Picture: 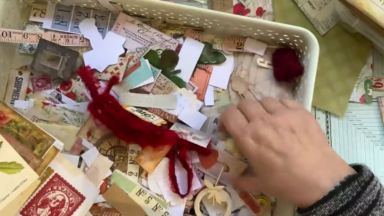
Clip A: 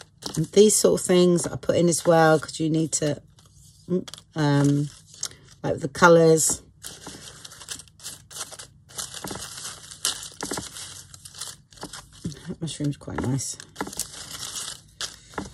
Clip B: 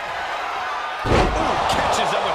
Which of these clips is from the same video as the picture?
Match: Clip A